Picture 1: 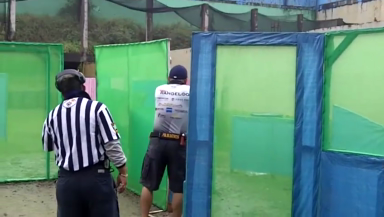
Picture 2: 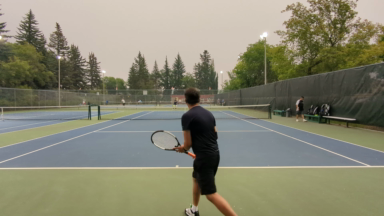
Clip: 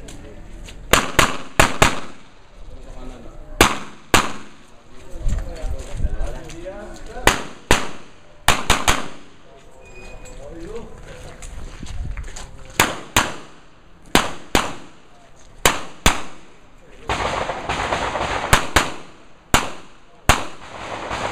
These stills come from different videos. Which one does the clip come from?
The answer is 1